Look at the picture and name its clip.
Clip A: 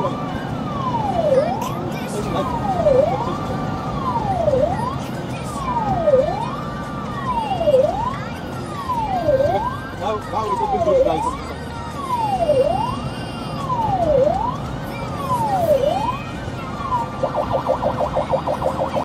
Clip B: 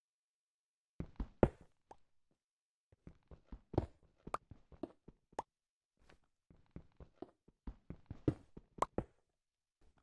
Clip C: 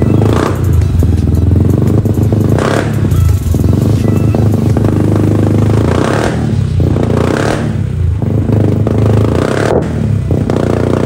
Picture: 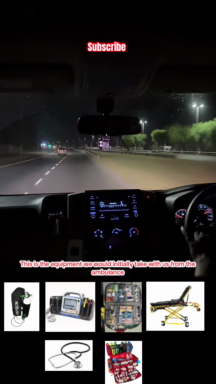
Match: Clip A